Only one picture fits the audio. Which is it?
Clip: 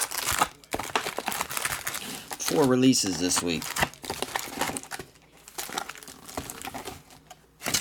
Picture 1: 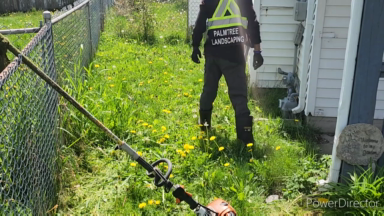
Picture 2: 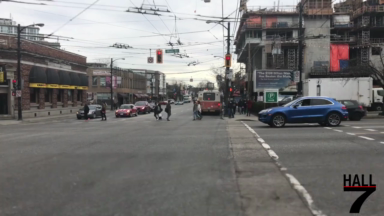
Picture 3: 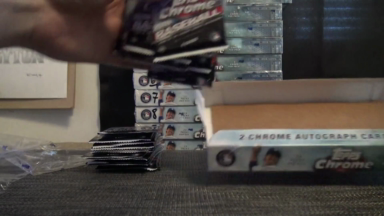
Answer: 3